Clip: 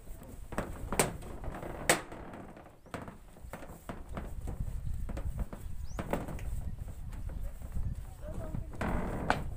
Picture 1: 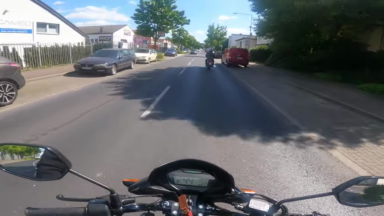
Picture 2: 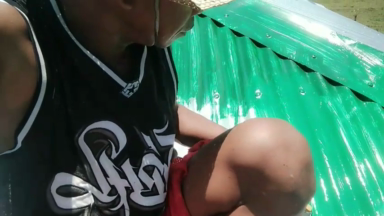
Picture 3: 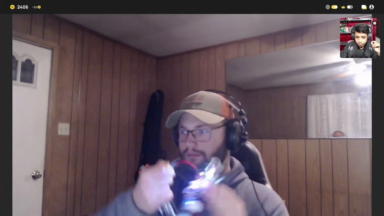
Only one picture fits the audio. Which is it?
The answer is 2